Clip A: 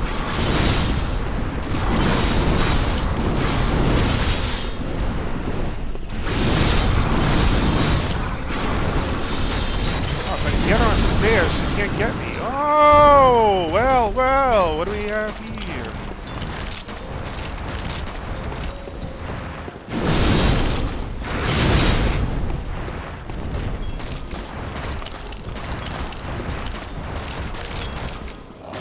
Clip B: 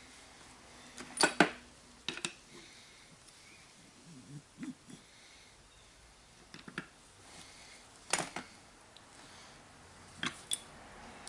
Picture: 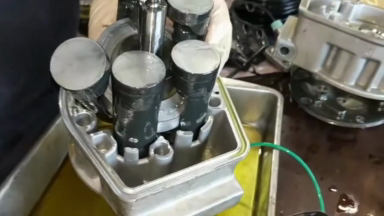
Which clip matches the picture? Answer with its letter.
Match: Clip B